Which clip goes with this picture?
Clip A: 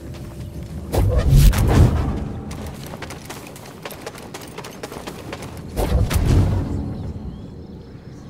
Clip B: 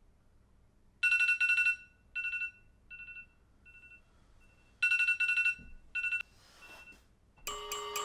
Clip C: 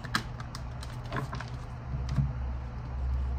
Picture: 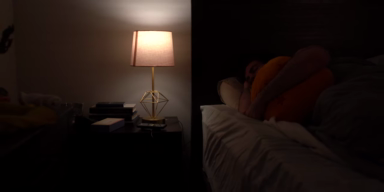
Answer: B